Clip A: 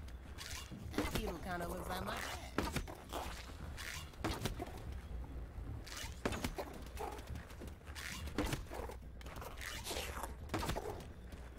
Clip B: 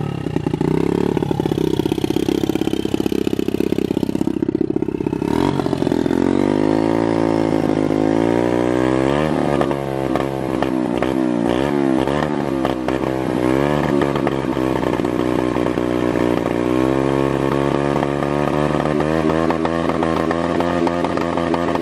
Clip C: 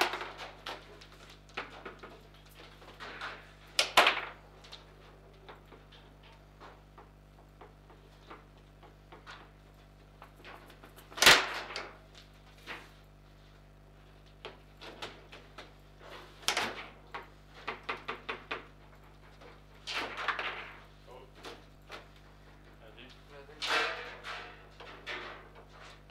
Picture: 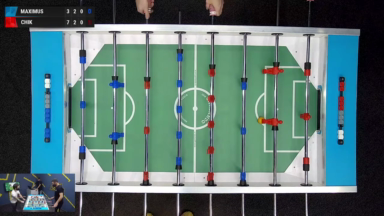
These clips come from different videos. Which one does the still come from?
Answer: C